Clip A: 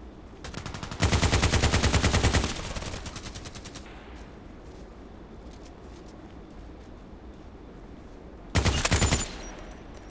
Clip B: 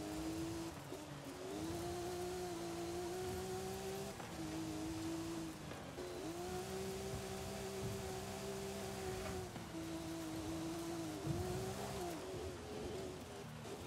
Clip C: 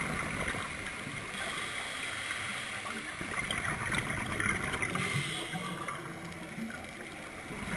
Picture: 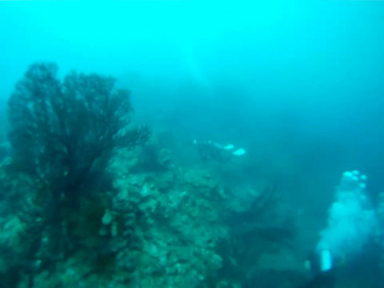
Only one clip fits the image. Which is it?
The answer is C